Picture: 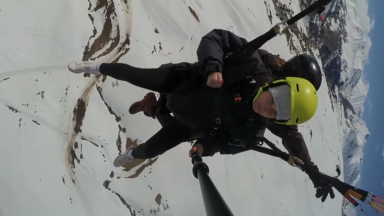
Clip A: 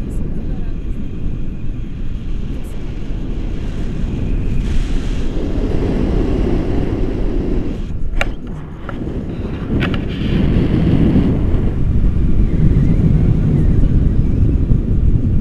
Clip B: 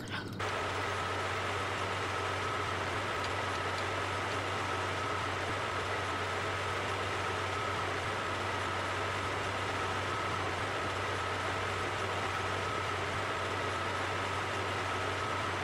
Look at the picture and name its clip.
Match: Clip A